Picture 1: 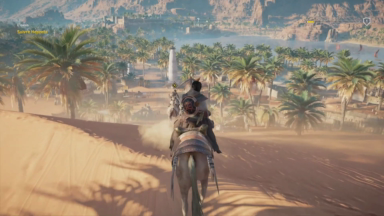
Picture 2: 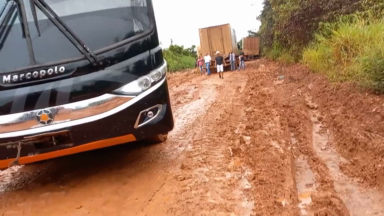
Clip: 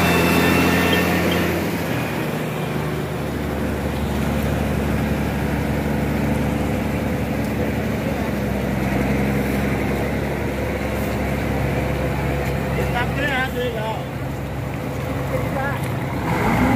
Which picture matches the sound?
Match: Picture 2